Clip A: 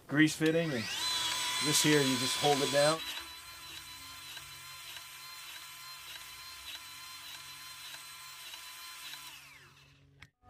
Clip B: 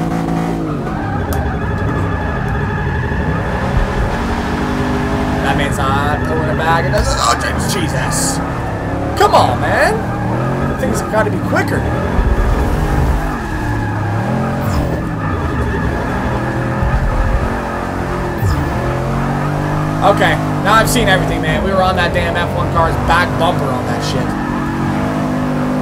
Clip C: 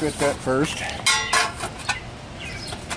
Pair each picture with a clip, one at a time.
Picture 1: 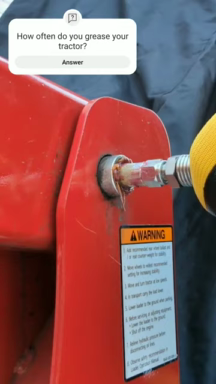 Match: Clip A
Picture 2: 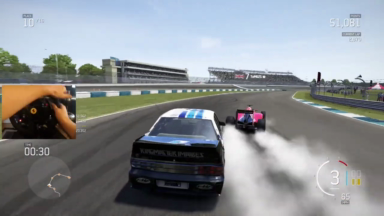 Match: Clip B